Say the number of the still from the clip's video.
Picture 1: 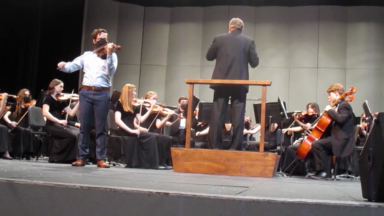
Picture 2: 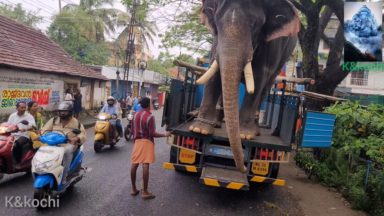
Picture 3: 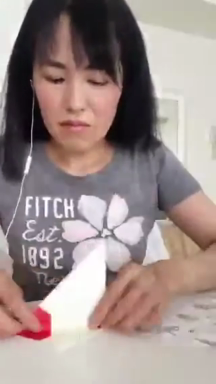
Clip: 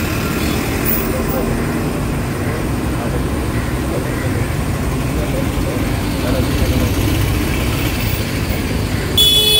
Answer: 2